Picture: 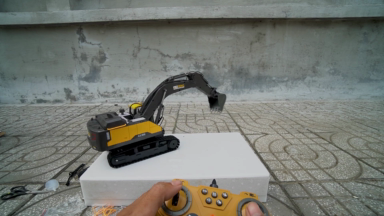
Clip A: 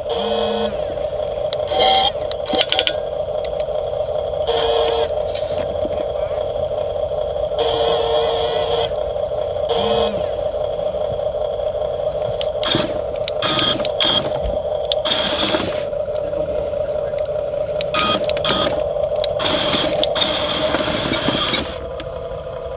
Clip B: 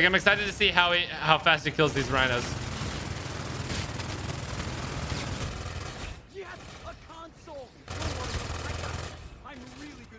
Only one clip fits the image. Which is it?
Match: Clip A